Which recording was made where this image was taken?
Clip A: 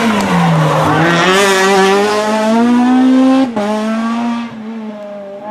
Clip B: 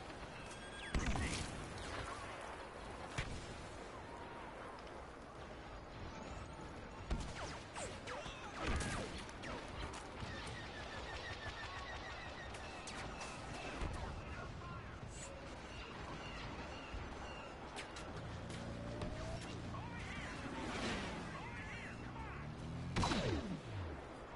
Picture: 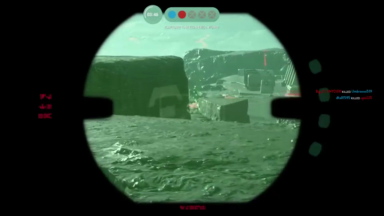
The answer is B